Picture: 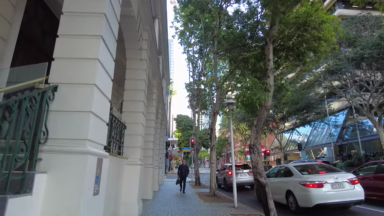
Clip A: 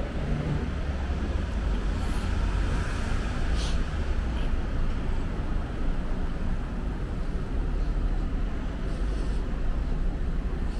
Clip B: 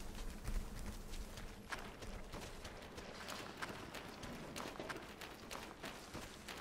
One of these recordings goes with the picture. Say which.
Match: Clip A